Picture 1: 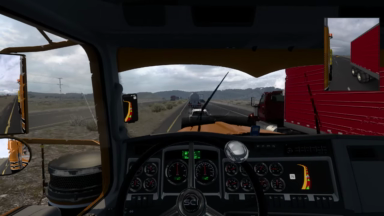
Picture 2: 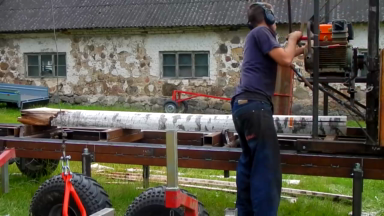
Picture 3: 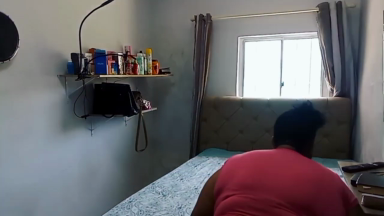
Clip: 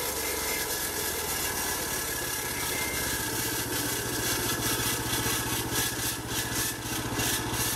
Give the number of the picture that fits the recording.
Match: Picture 2